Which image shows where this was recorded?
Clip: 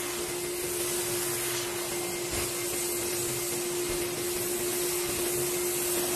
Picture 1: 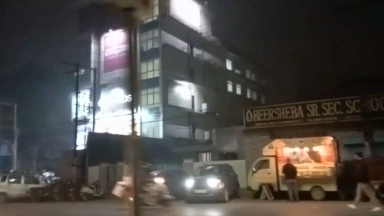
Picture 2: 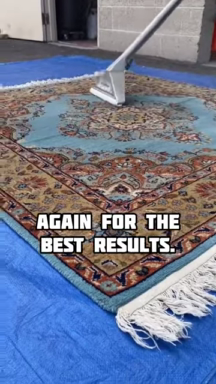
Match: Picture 2